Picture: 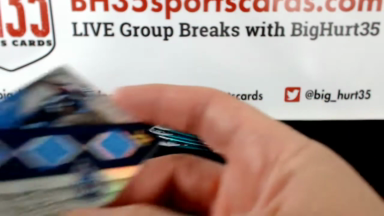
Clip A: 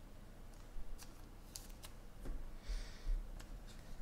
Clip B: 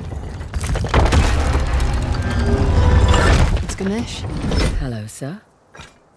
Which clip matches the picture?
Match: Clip A